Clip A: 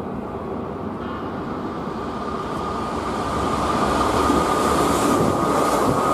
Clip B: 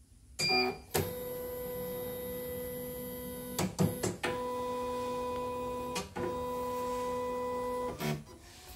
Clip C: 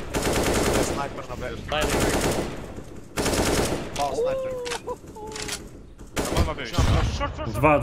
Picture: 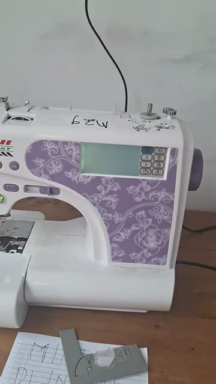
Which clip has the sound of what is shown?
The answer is B